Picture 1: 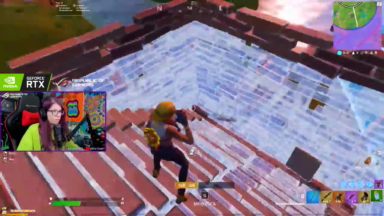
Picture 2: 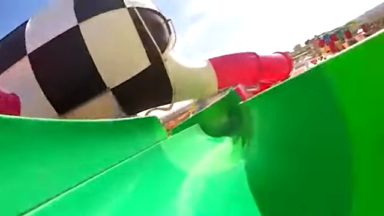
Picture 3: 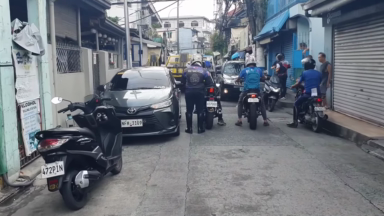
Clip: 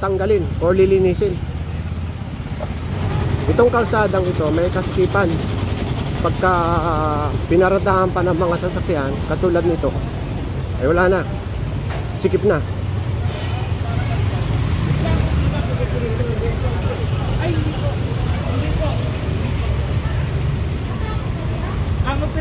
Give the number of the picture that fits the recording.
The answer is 3